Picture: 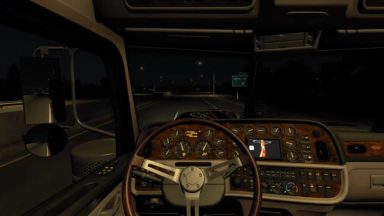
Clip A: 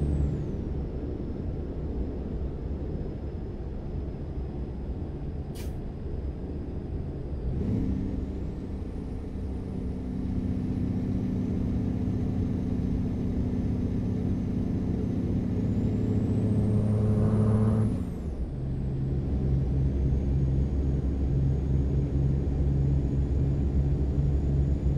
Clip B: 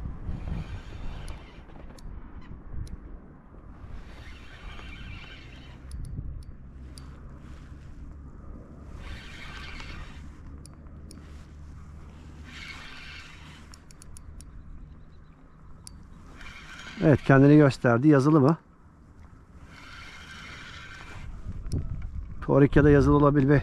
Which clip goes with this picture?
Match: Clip A